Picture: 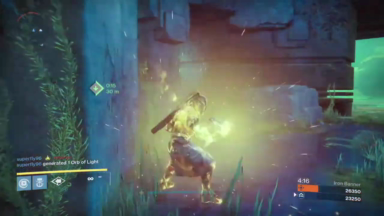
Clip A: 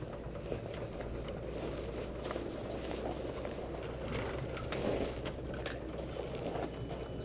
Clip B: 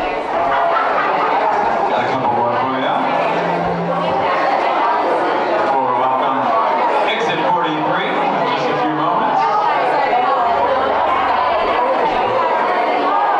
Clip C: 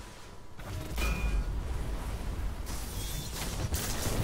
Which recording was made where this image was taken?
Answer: C